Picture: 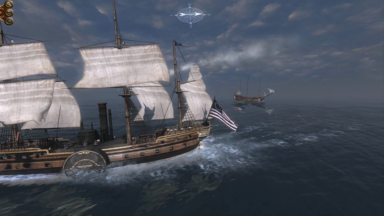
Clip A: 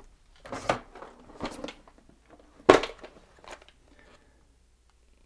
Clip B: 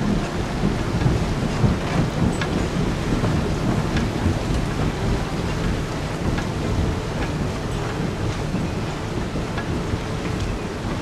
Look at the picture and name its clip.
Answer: B